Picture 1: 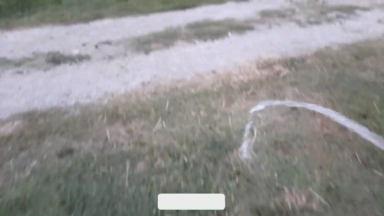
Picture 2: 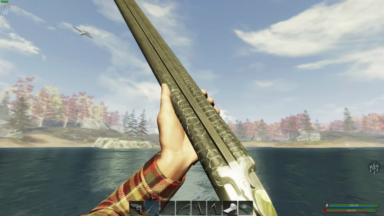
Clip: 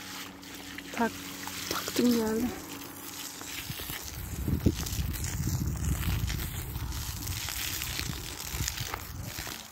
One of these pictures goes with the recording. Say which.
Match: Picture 1